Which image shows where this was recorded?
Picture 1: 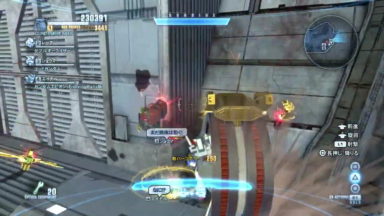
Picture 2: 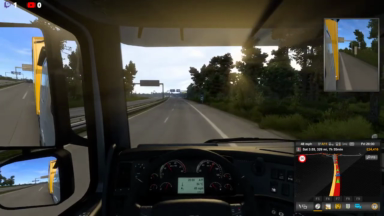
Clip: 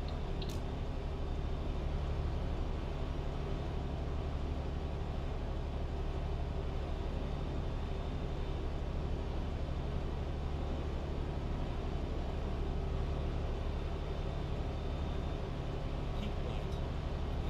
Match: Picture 2